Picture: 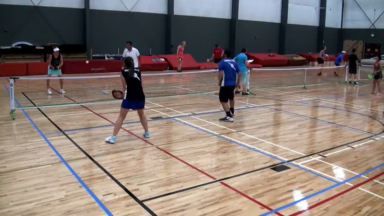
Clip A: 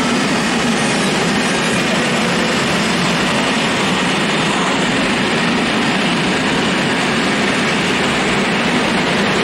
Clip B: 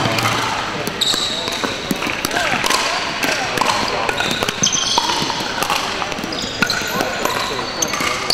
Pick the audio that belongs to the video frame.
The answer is B